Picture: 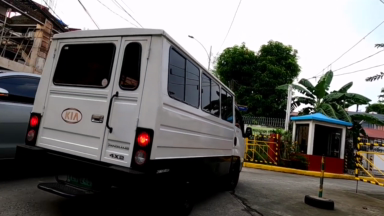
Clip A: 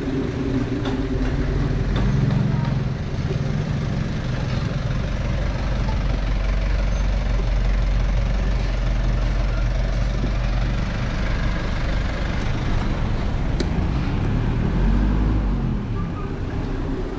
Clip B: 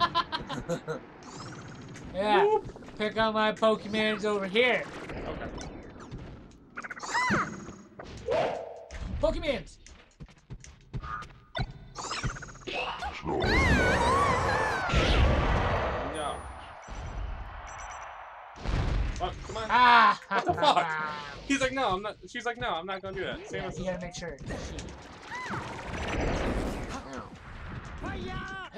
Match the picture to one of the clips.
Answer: A